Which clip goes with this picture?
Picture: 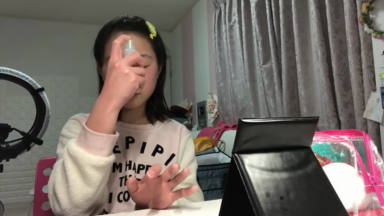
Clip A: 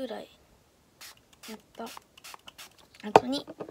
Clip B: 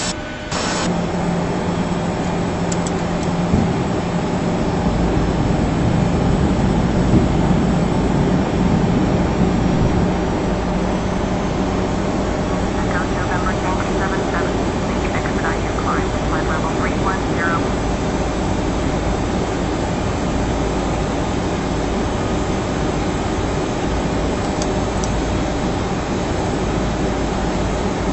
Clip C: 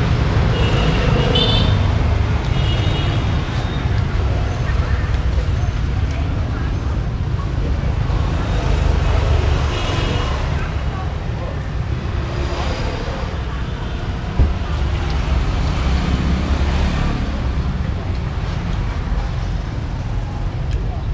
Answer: A